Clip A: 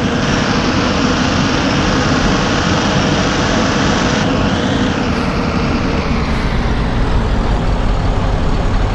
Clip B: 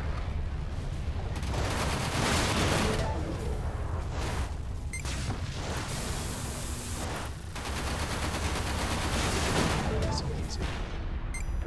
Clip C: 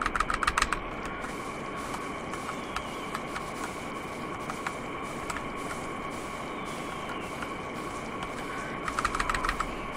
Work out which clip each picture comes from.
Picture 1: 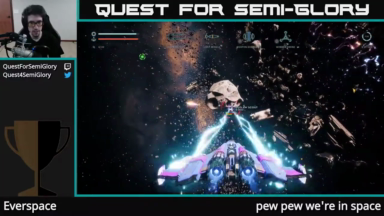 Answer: B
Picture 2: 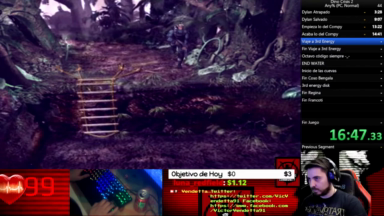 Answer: C